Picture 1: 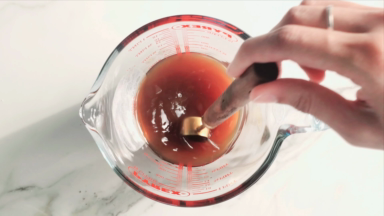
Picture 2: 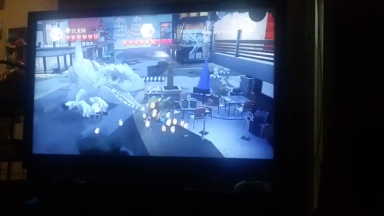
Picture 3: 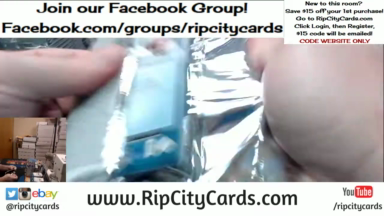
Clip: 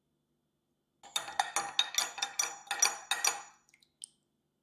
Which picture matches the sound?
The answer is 1